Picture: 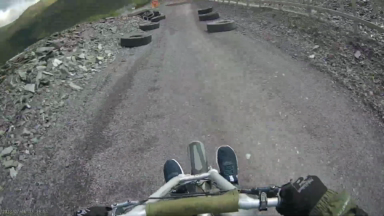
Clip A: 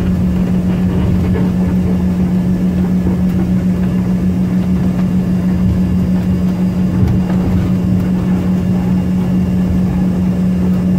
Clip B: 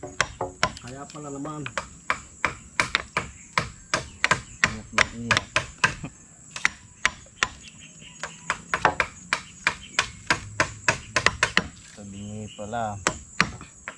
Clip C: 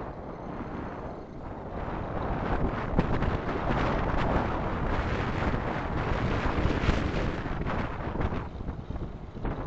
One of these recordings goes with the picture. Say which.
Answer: C